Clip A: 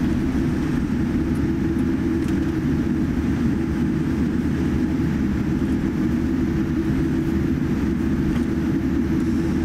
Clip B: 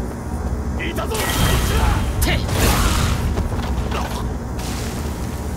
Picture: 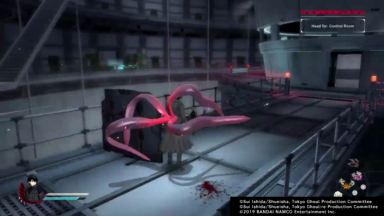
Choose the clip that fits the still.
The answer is B